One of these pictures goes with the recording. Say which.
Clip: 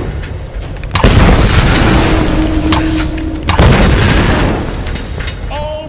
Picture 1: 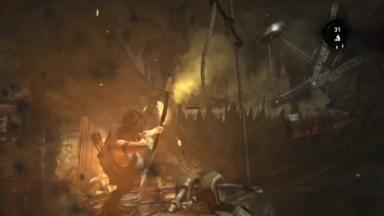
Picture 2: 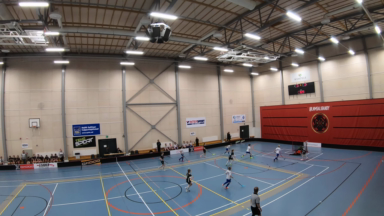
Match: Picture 1